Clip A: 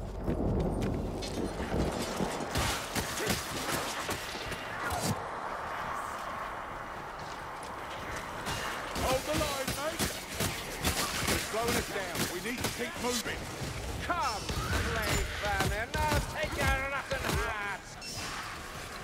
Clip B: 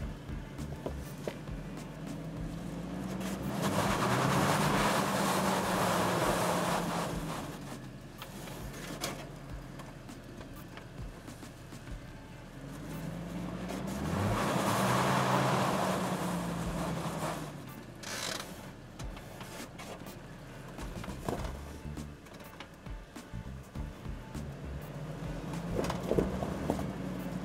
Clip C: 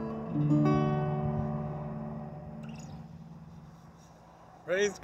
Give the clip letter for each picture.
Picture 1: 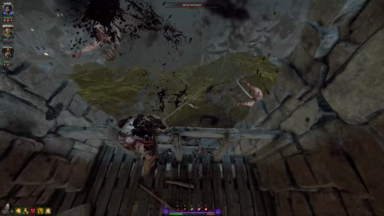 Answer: A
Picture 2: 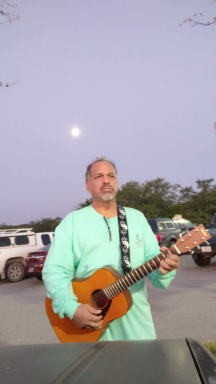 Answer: C